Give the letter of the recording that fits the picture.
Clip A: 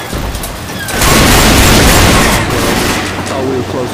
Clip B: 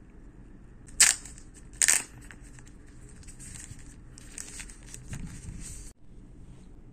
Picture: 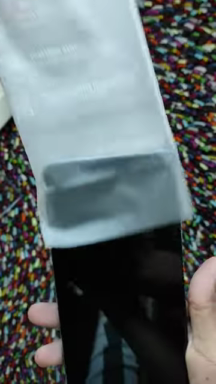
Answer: B